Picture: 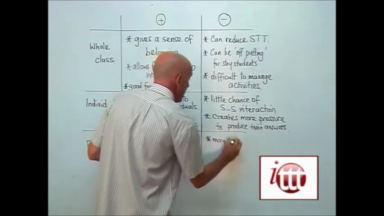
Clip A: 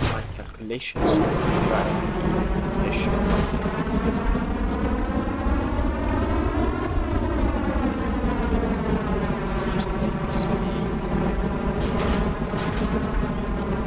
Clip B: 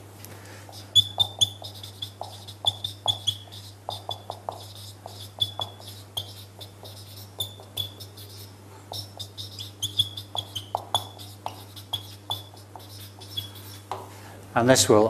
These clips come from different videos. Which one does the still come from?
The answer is B